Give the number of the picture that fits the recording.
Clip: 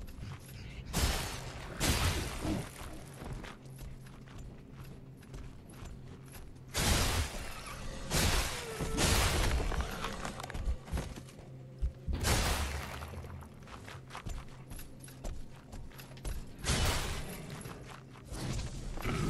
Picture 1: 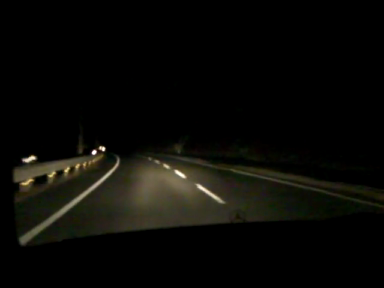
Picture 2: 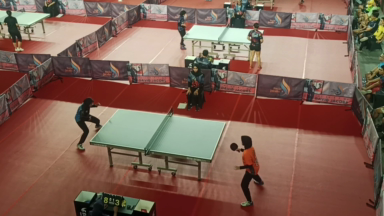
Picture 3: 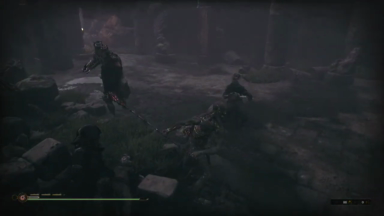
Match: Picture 3